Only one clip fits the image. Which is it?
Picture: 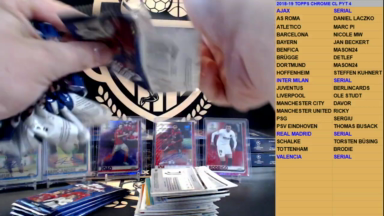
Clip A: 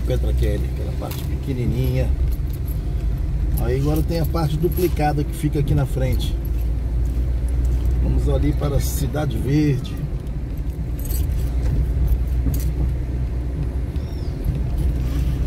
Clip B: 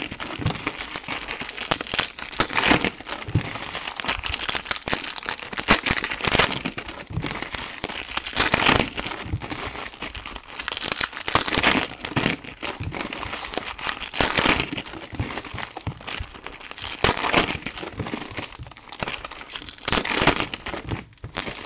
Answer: B